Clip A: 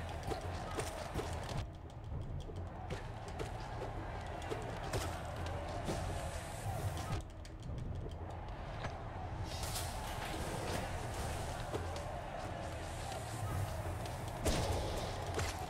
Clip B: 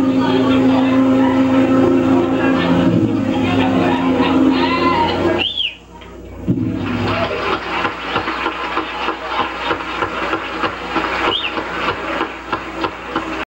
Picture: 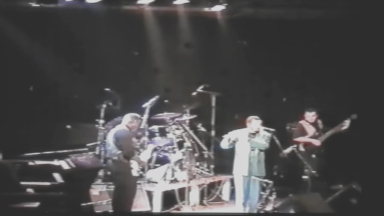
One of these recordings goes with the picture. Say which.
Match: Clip B